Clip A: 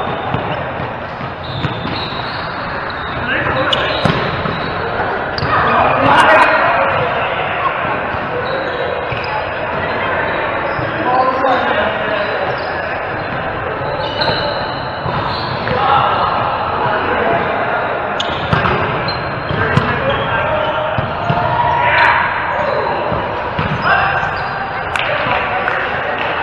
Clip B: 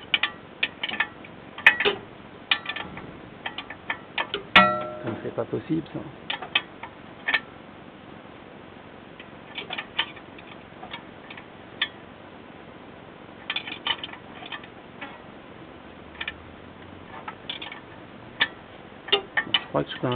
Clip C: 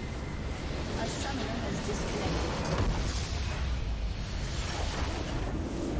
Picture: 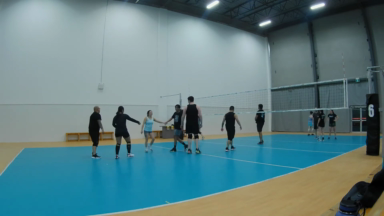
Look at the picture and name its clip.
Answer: A